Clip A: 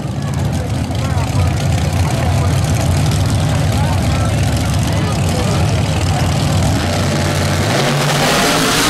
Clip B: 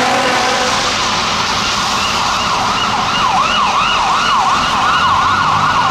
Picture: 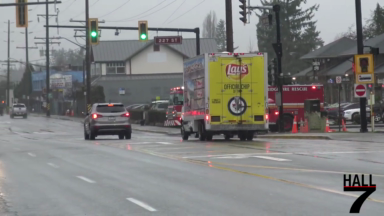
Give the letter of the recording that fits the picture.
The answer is B